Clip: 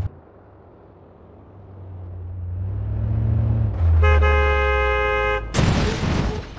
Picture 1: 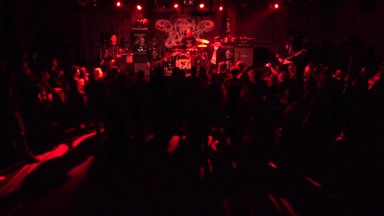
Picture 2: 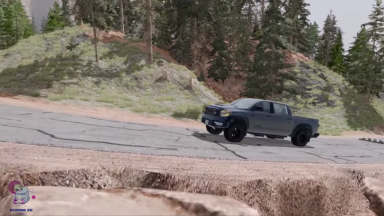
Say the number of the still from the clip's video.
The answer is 2